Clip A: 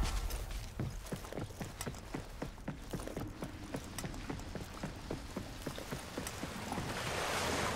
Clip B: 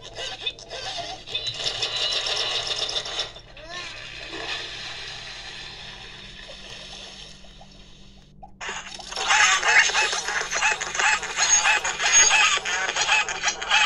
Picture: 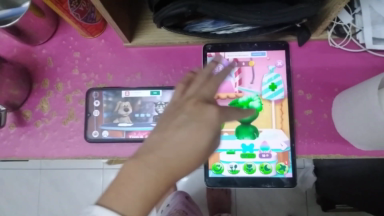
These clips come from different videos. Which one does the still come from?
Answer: B